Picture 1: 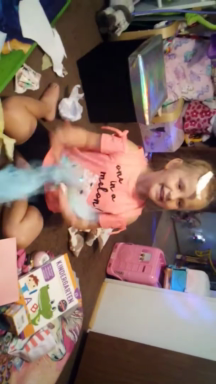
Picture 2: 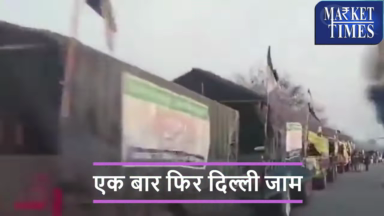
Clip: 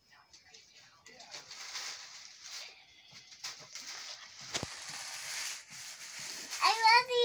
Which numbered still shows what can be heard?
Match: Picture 1